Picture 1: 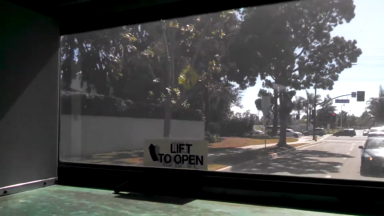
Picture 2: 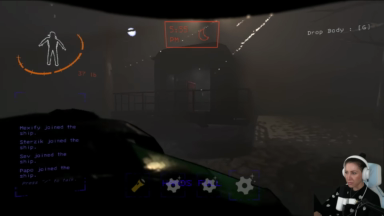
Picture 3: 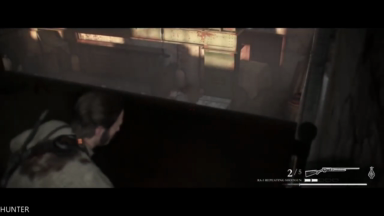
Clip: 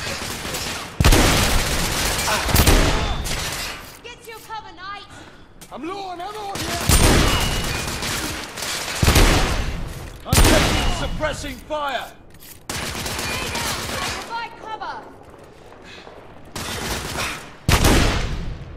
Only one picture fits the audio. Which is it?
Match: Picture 3